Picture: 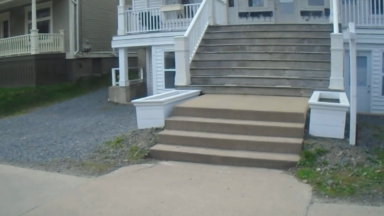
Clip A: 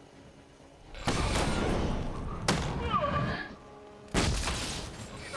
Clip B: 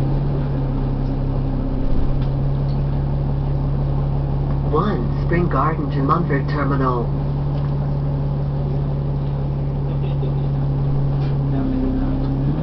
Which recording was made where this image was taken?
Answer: B